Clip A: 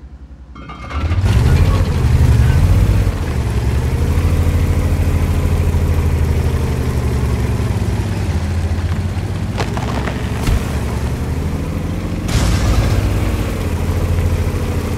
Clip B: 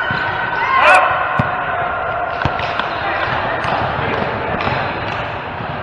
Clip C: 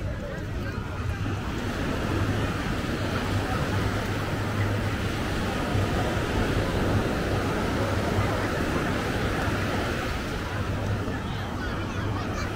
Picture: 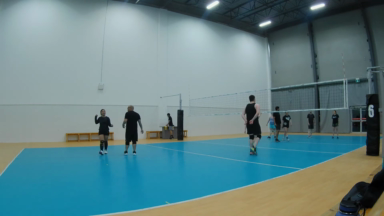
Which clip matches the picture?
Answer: B